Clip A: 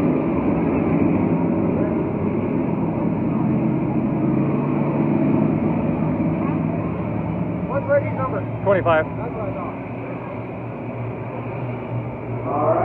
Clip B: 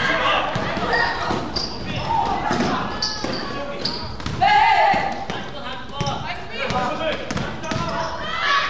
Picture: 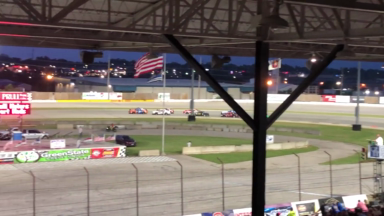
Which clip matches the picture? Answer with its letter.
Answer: A